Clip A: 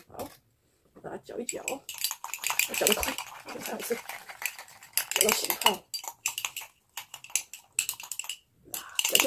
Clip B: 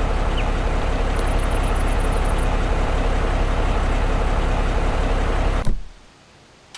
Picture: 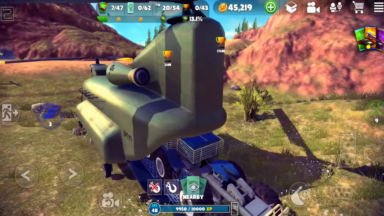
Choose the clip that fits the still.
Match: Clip B